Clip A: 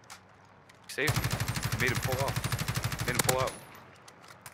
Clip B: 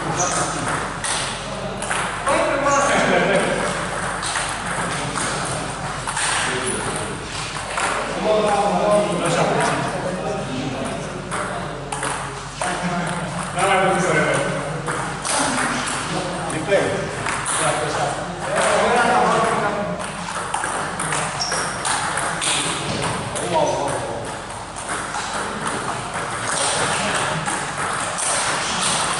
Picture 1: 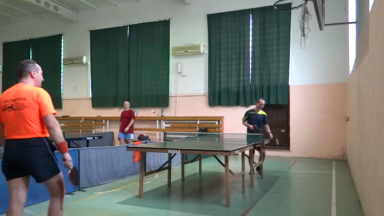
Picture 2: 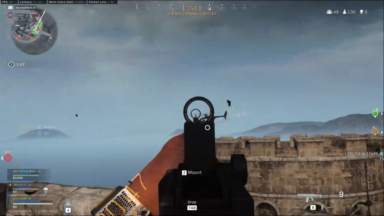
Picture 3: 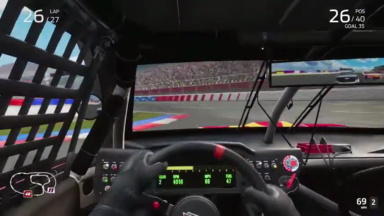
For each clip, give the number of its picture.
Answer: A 2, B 1